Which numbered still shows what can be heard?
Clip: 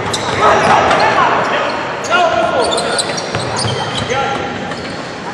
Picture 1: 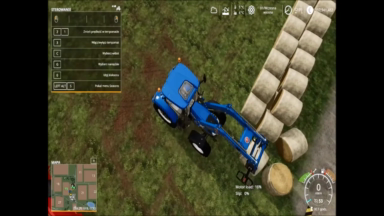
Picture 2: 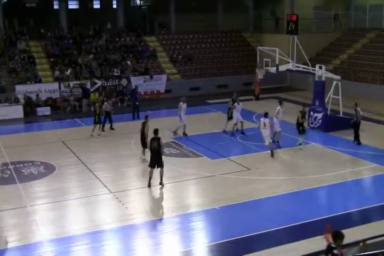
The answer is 2